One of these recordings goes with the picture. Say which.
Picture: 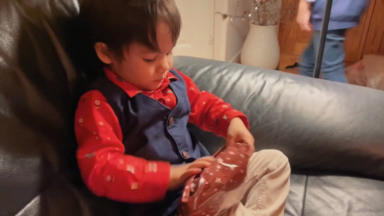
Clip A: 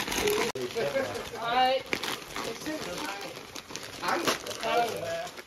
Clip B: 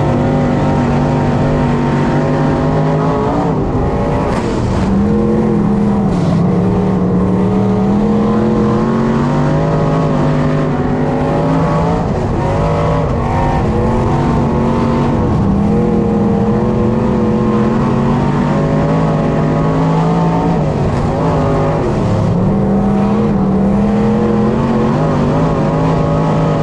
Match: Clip A